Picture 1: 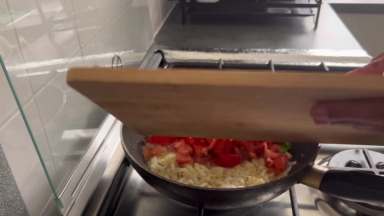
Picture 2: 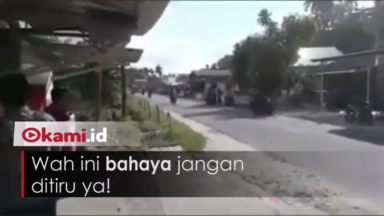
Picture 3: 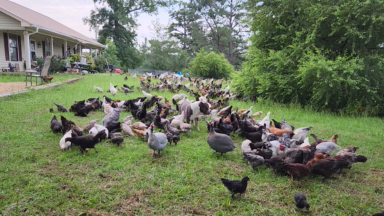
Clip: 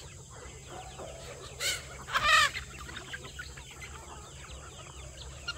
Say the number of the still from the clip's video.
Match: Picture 3